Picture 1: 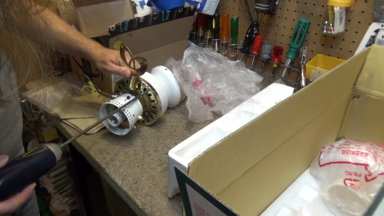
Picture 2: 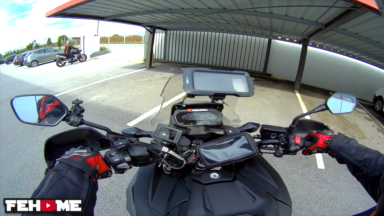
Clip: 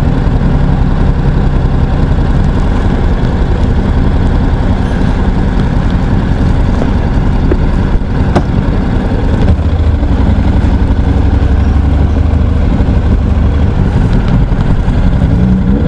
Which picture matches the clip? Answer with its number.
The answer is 2